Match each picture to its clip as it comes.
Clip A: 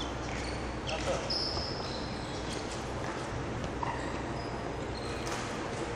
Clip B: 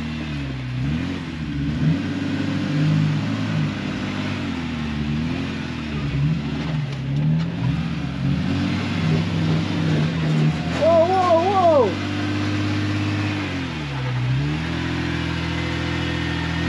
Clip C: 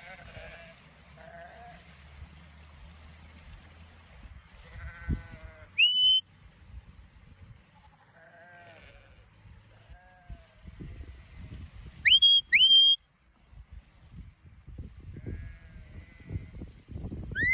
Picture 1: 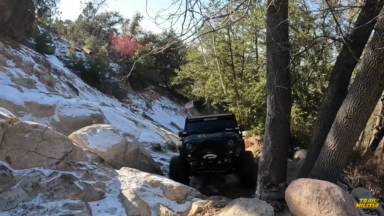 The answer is B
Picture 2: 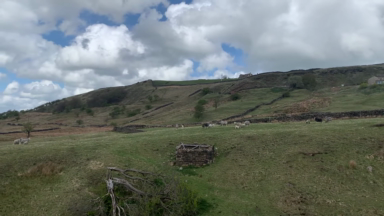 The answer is C